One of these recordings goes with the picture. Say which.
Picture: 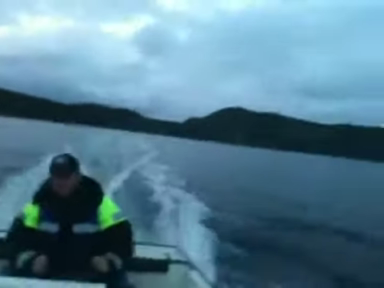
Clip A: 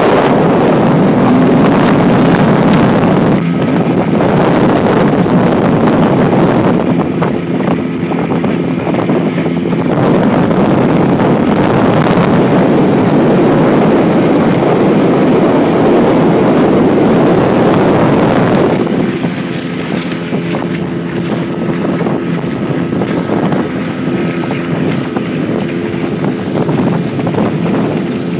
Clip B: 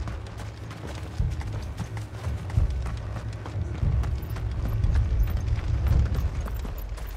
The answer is A